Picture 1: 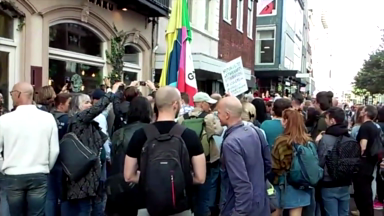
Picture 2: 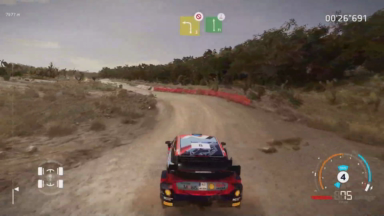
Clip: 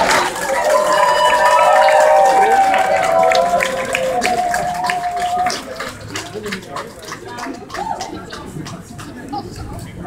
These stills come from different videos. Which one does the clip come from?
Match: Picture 1